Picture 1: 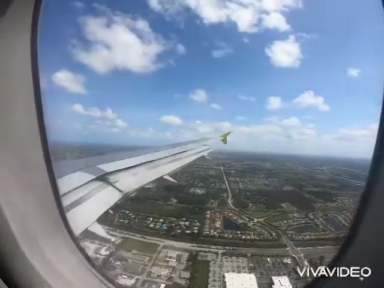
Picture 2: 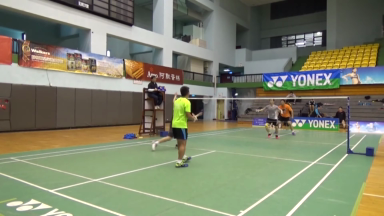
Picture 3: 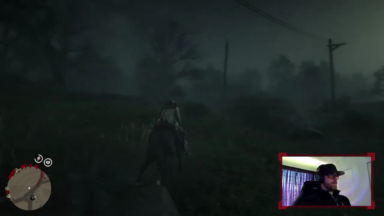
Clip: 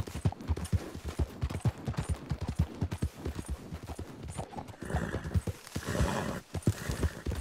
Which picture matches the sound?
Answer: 3